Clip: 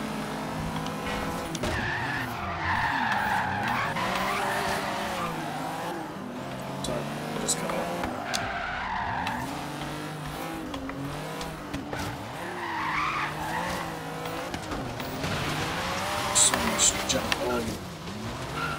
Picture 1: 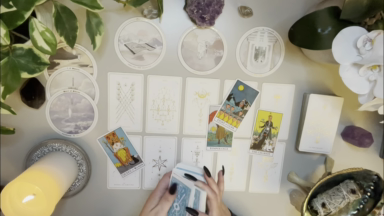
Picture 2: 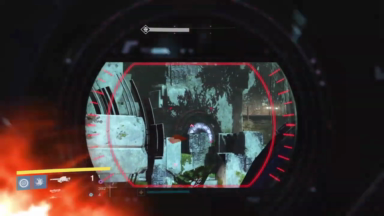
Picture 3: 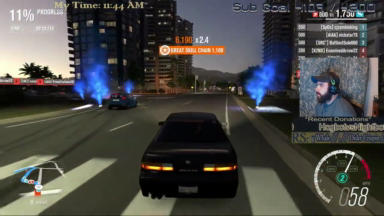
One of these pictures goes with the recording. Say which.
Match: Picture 3